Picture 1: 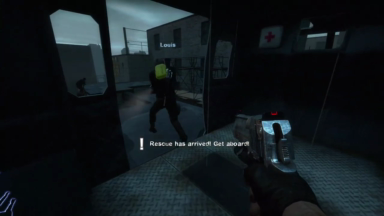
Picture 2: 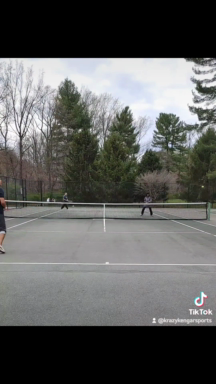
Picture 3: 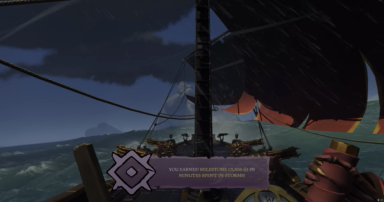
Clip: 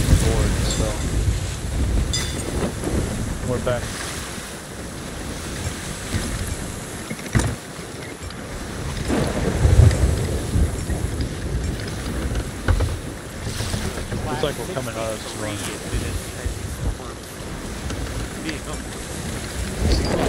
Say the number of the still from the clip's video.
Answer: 3